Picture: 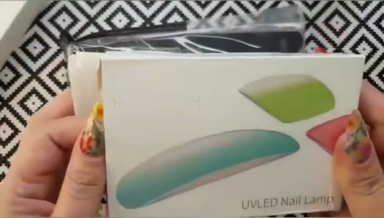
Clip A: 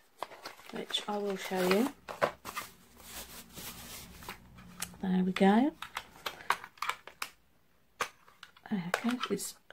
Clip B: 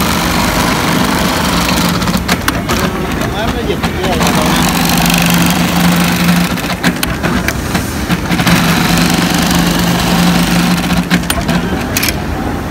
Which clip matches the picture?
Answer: A